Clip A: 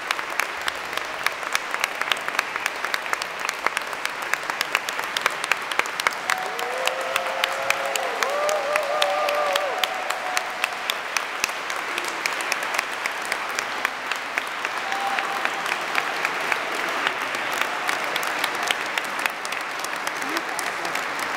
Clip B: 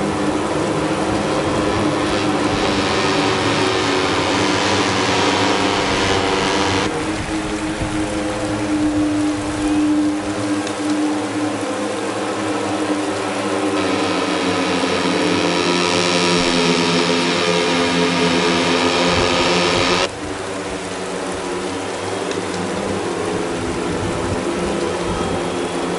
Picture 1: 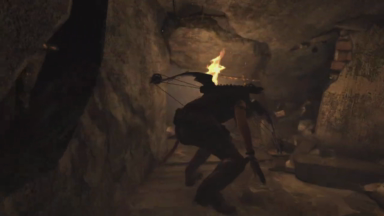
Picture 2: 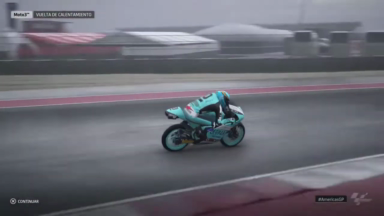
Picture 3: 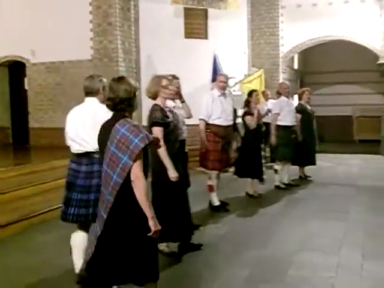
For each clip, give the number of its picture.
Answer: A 3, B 2